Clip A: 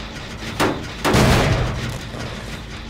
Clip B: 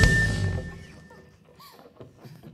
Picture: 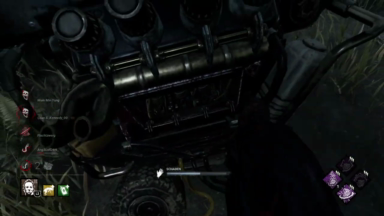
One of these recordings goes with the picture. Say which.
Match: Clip A